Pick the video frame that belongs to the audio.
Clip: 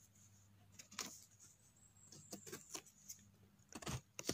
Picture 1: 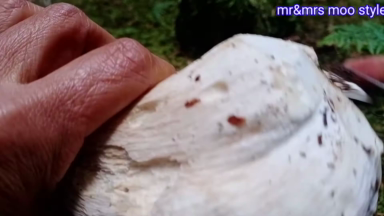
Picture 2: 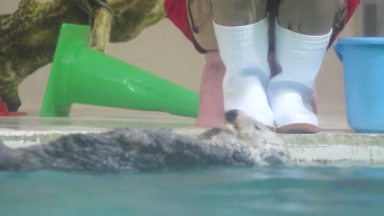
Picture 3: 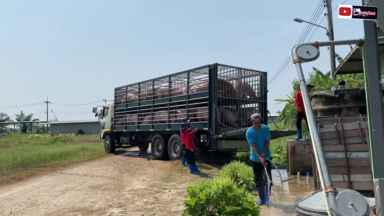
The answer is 1